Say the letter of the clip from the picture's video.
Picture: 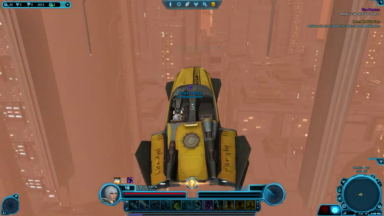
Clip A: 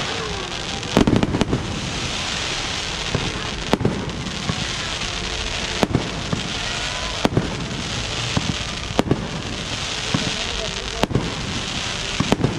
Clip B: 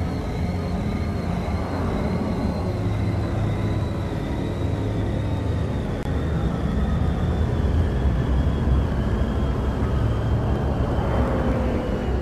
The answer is B